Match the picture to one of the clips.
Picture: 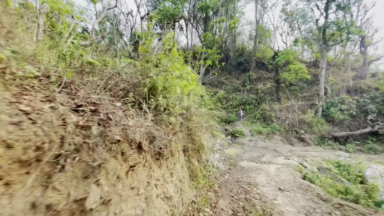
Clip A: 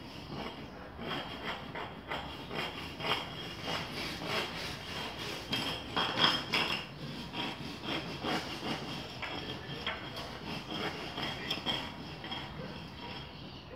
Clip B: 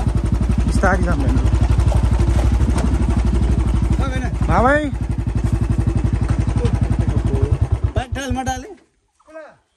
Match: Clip B